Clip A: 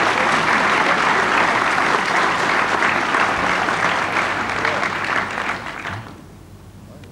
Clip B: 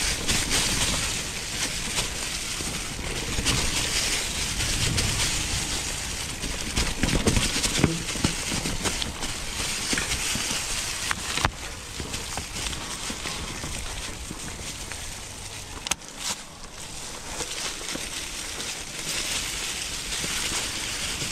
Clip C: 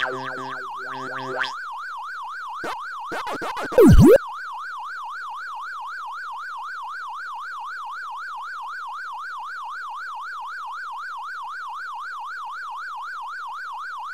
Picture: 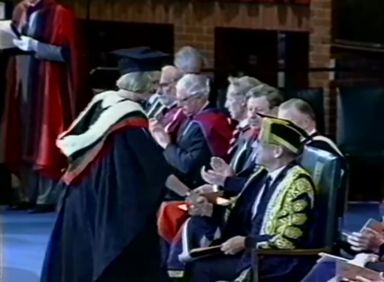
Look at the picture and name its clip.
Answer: A